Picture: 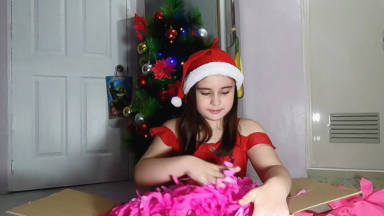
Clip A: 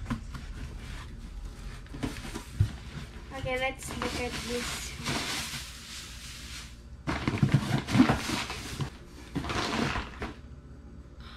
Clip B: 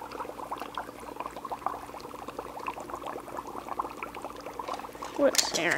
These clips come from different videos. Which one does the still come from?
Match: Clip A